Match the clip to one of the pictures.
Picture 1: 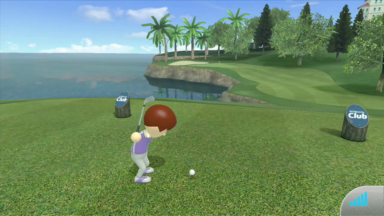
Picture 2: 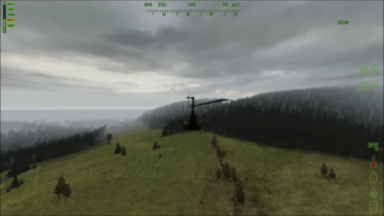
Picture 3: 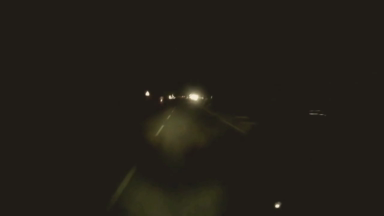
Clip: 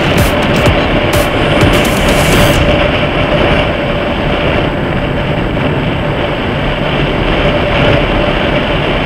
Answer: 3